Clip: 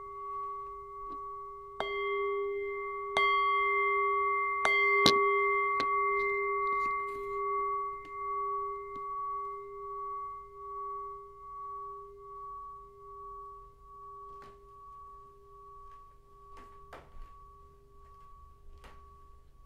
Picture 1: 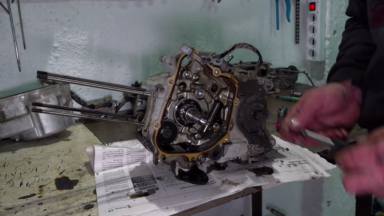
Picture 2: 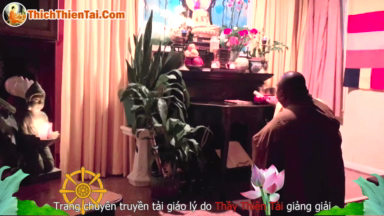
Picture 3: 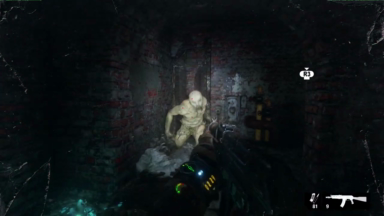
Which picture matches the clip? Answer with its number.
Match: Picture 2